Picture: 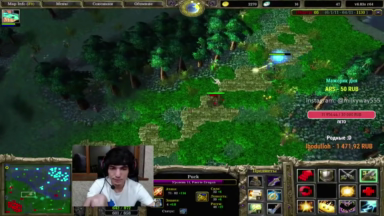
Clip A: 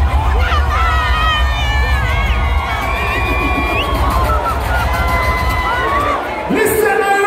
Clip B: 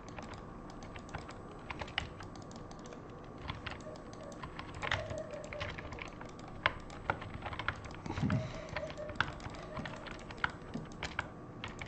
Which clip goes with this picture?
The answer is B